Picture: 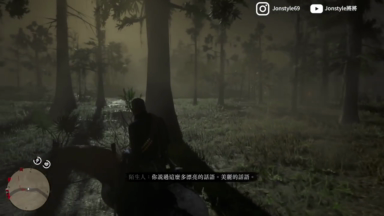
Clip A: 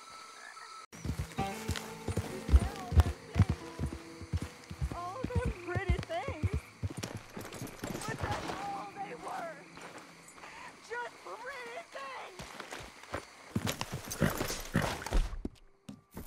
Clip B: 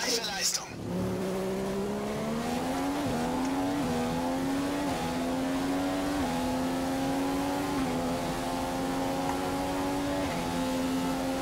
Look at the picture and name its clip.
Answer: A